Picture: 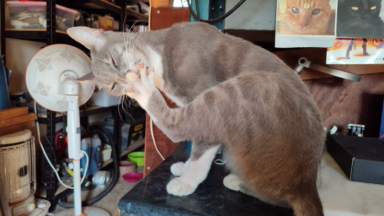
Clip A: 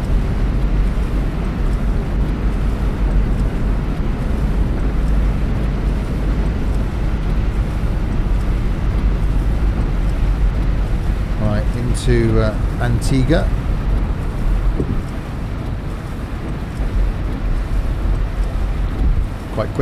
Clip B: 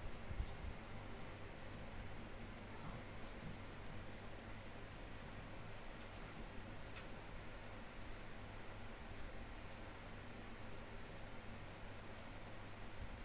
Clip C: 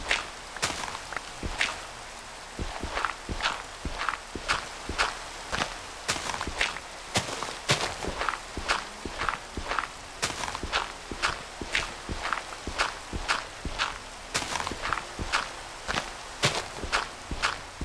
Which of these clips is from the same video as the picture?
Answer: B